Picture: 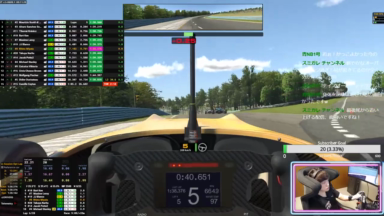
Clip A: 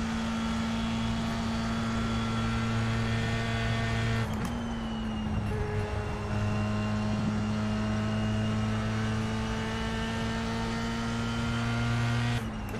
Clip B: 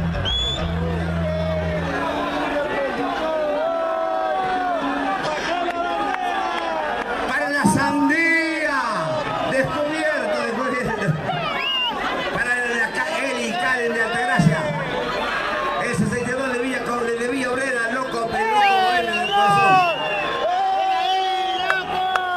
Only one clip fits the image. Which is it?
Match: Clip A